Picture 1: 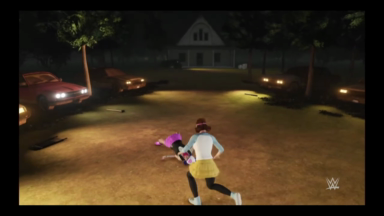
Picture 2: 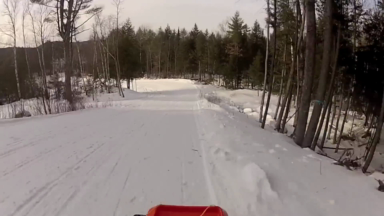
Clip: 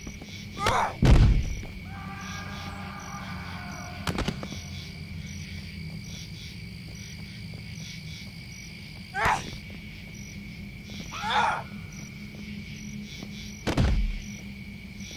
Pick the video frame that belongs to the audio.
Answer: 1